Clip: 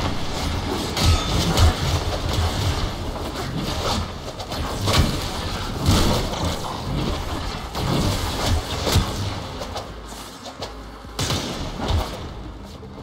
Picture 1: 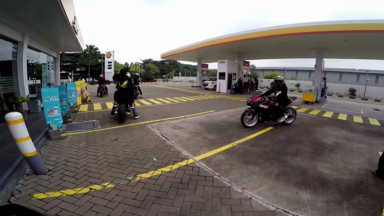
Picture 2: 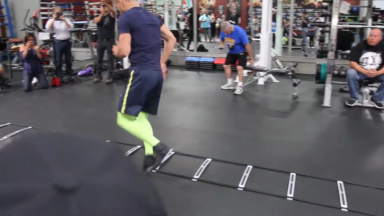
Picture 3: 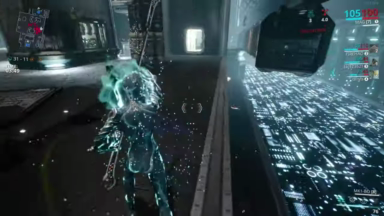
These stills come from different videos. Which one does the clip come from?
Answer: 3